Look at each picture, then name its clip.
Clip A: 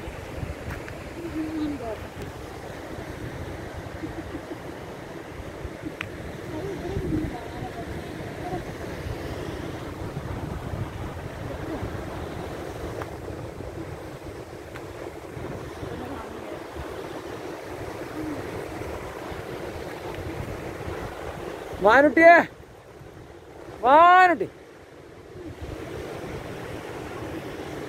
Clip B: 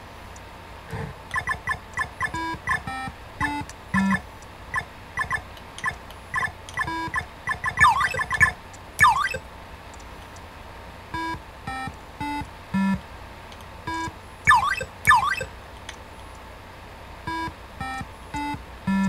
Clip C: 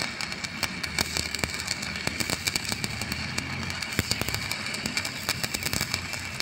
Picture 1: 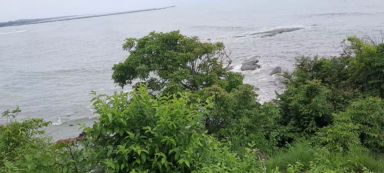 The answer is A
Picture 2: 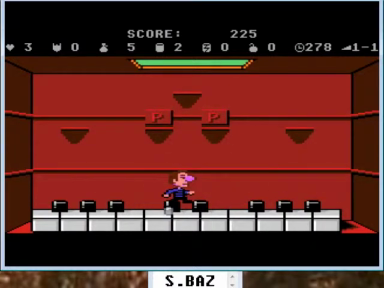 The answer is B